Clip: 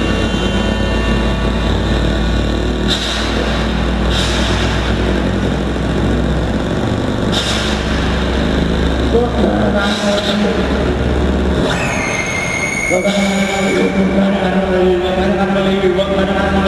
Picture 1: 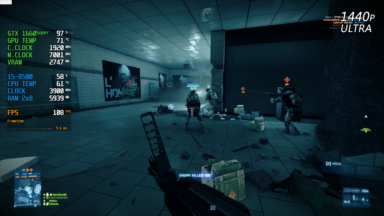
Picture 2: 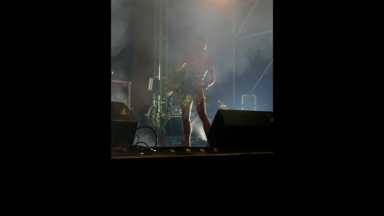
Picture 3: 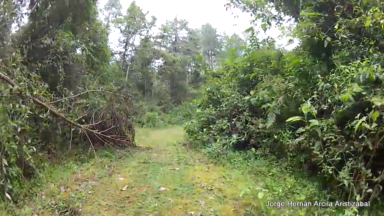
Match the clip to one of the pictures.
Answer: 2